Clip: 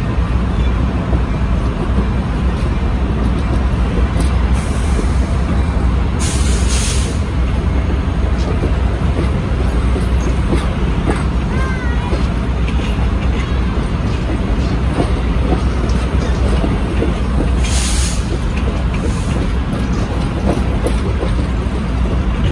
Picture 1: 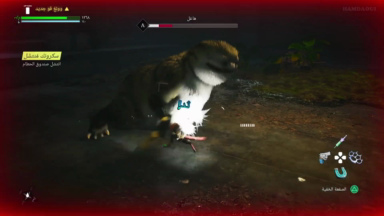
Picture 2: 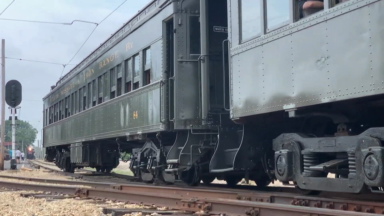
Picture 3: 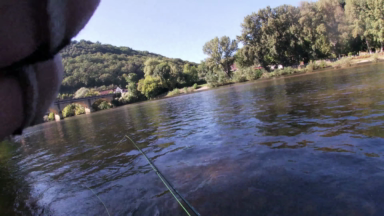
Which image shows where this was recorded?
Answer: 2